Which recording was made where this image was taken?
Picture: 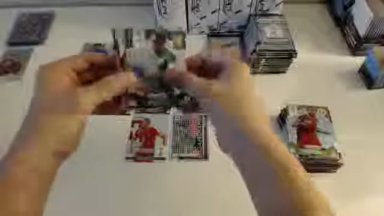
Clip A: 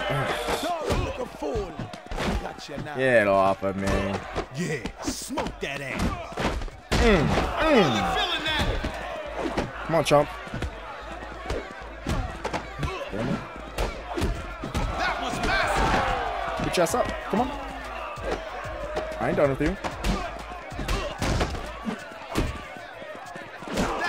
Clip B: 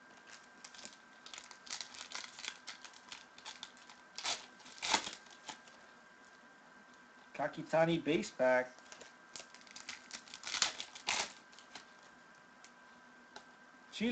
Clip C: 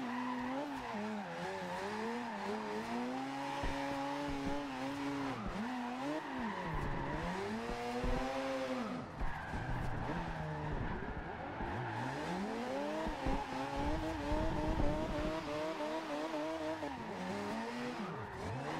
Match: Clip B